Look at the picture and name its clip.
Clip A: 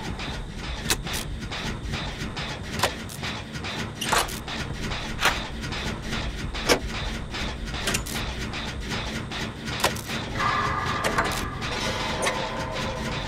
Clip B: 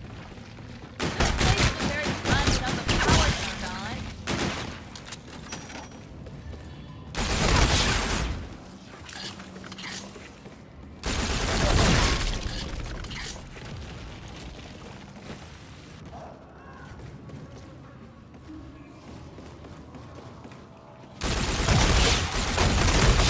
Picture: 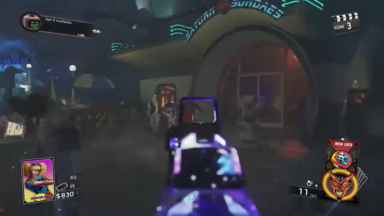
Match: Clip B